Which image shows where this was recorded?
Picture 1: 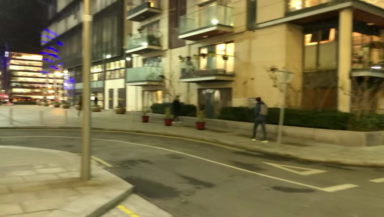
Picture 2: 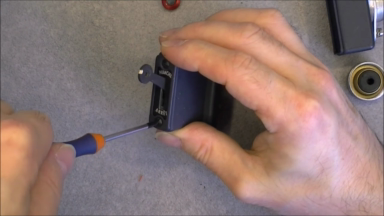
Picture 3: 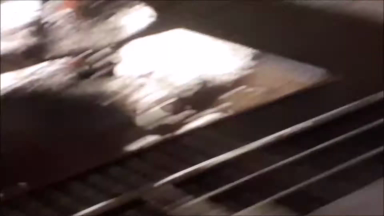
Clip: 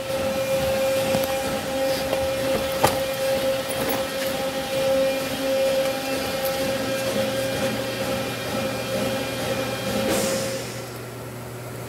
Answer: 3